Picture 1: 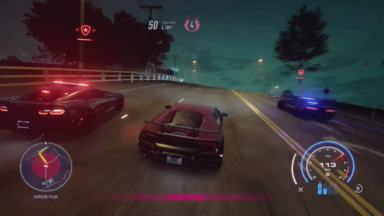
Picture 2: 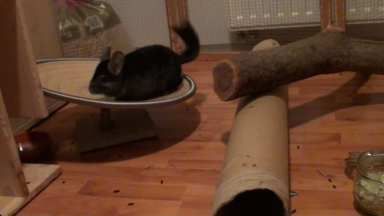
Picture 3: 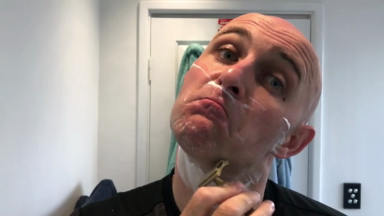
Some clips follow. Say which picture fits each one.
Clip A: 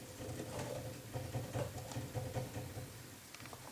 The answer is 2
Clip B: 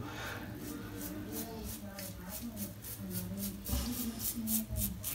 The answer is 3